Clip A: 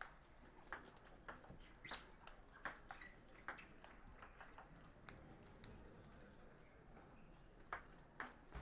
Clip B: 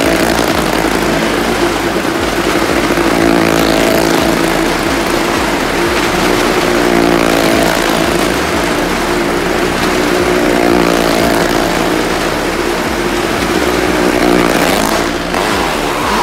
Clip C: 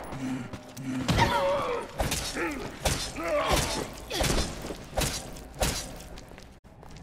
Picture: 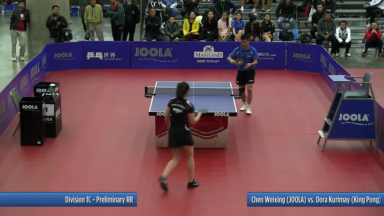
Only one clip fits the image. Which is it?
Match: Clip A